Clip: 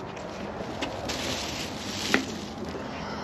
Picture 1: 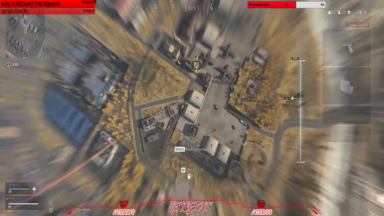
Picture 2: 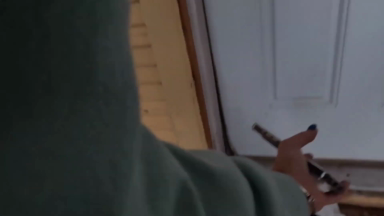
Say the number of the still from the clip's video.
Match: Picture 2